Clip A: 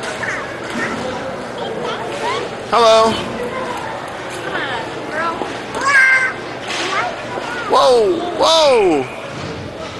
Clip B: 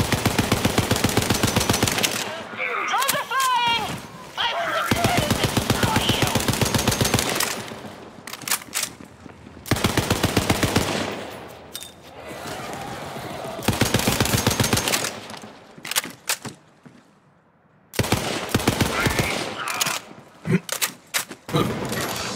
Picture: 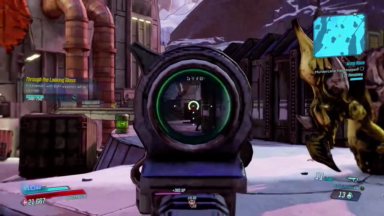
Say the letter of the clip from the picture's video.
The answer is B